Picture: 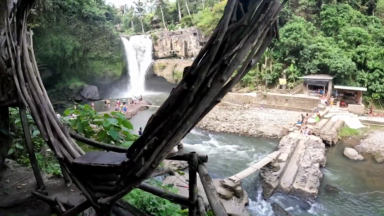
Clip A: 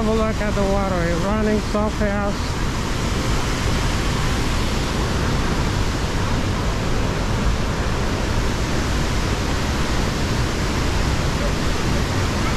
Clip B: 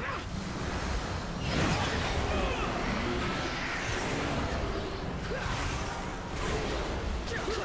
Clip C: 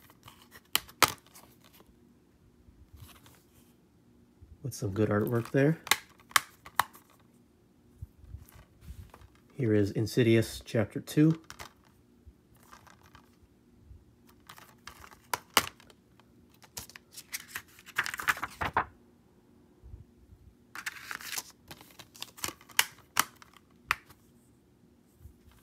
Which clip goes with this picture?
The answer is A